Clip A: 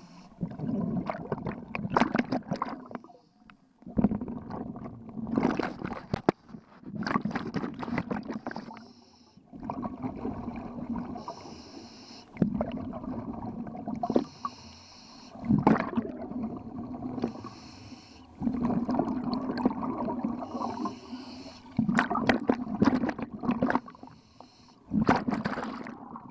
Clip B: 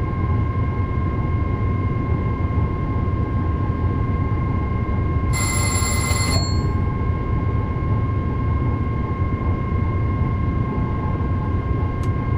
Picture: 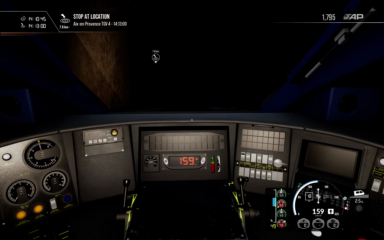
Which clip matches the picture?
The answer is B